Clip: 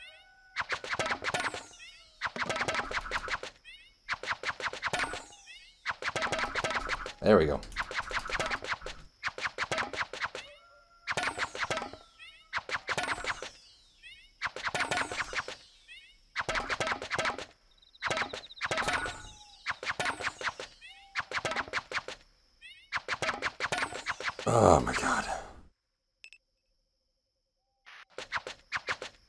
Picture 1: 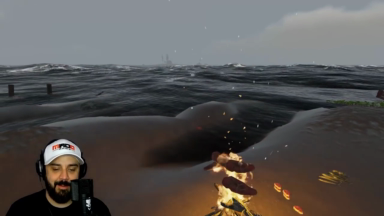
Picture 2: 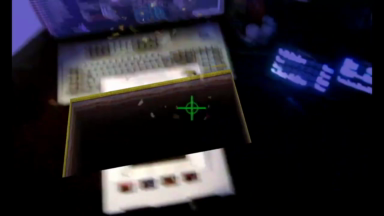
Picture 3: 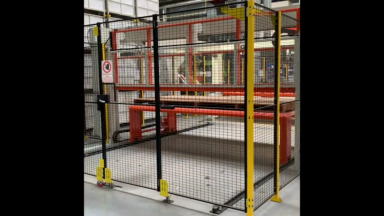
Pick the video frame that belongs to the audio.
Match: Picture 2